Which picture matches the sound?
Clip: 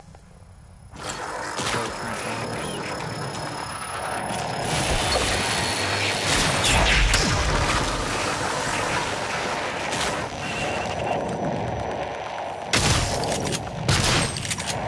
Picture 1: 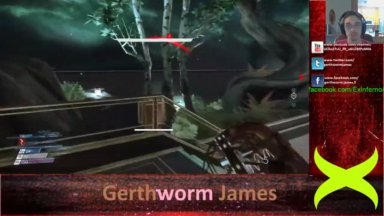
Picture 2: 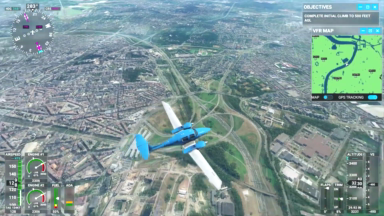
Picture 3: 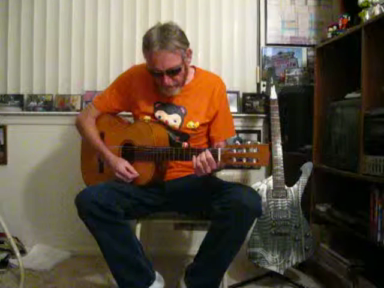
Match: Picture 1